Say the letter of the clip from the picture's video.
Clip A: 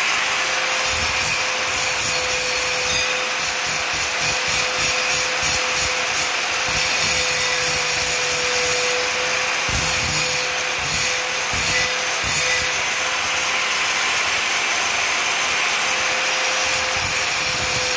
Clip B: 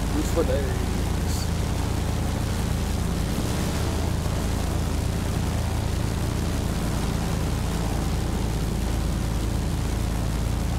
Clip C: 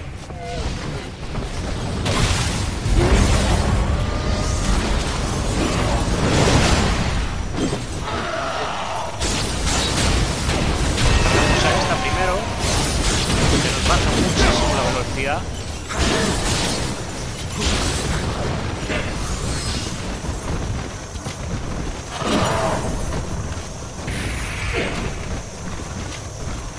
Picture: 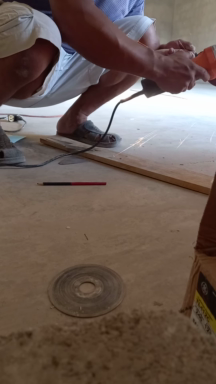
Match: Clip A